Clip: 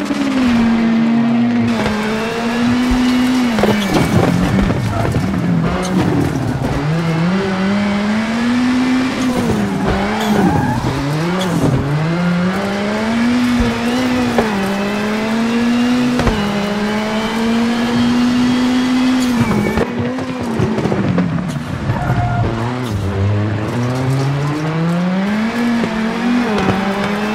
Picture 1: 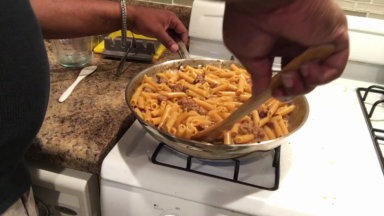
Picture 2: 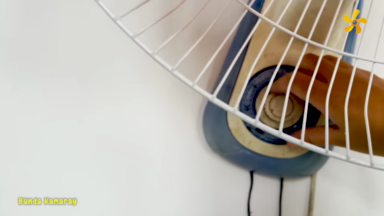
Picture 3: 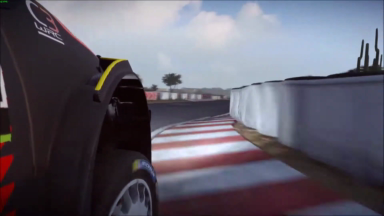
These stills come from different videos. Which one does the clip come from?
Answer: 3